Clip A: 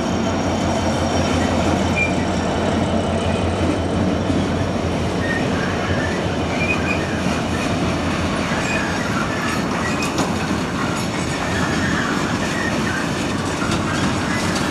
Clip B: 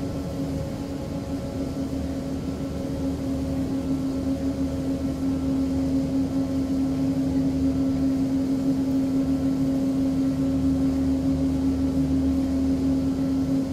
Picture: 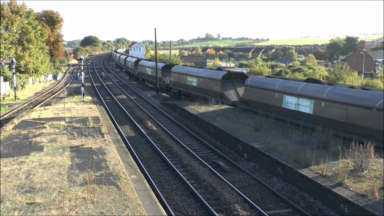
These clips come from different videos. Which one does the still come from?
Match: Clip A